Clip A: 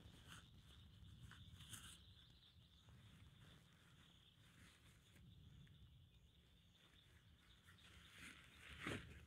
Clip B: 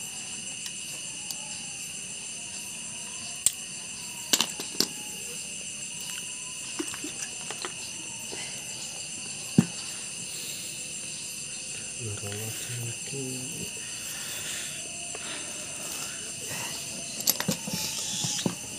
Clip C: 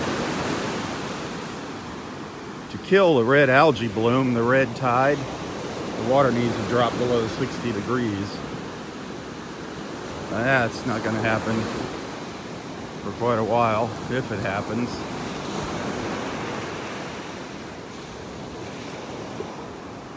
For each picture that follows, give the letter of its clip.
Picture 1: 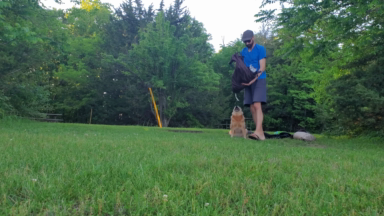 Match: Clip A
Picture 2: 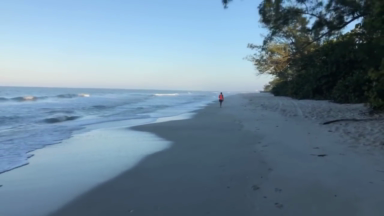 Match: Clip C